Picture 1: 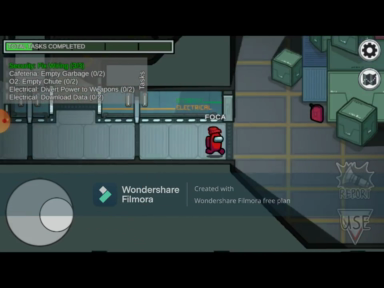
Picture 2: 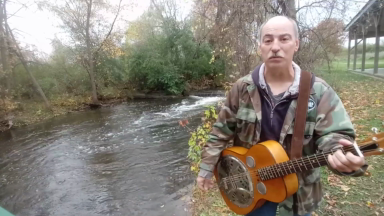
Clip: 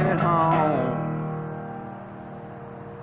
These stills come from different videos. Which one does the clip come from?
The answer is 2